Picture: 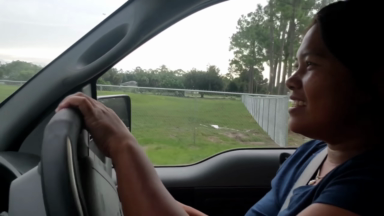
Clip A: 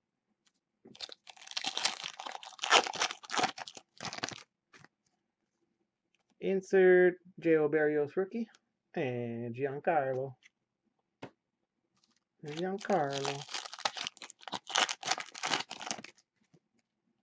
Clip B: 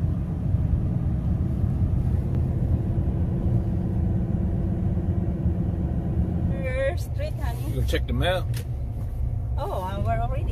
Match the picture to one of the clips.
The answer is B